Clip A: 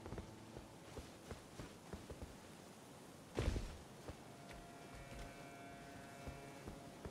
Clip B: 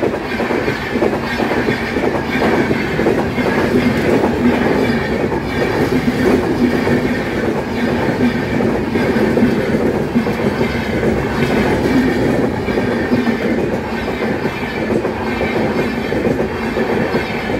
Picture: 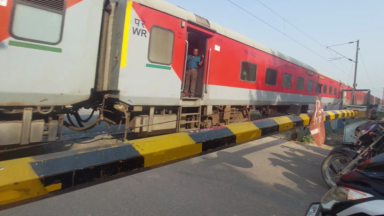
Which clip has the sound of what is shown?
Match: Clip B